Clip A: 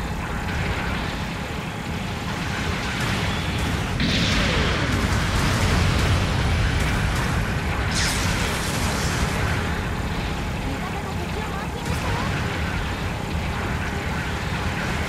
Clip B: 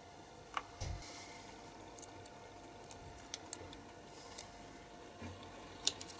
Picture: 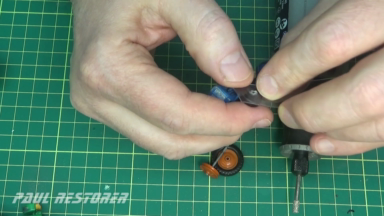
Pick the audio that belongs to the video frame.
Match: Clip B